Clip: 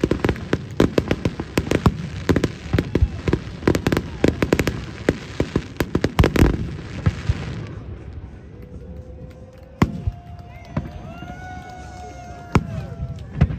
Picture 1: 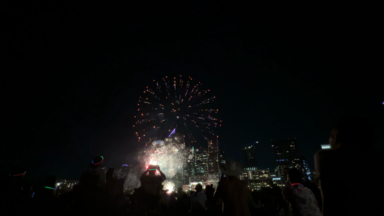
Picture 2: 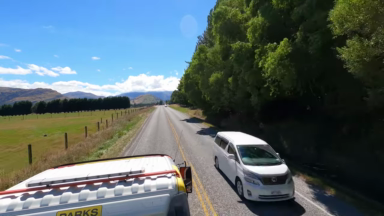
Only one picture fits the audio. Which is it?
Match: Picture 1